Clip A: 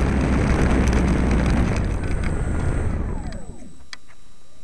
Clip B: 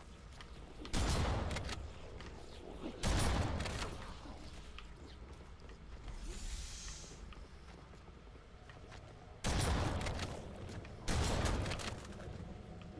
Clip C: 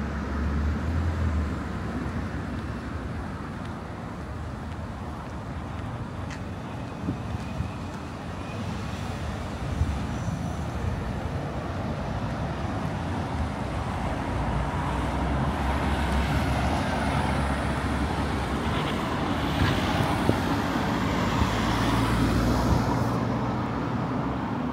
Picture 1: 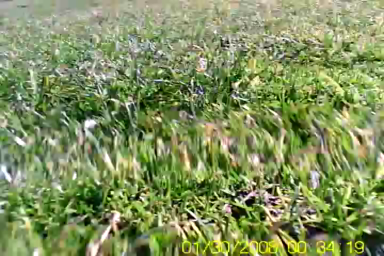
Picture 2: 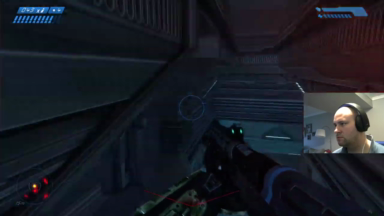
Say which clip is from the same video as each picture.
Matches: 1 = A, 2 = B